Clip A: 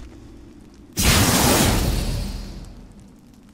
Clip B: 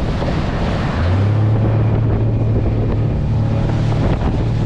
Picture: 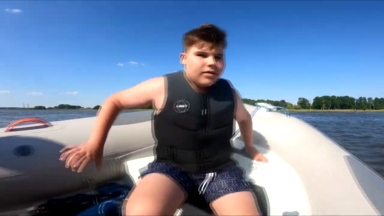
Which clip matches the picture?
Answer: B